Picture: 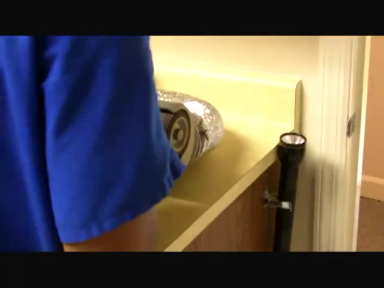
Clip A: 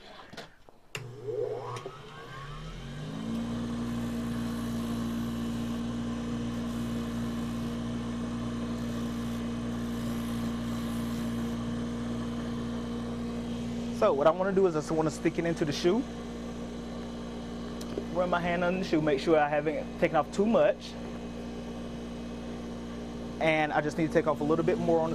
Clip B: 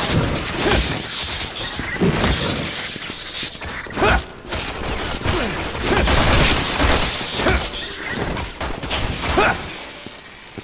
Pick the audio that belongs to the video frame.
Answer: A